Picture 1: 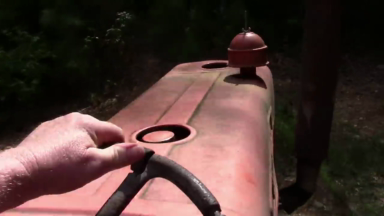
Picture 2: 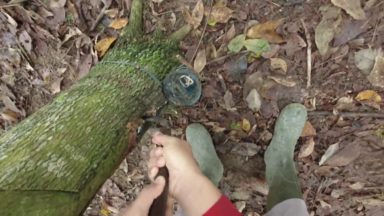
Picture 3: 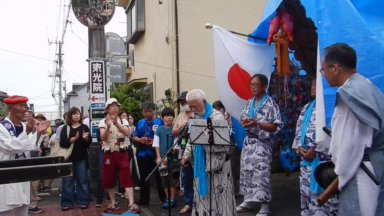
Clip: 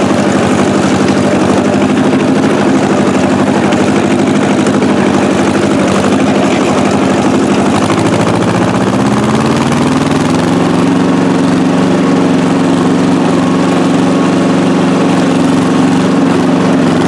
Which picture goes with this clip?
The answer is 1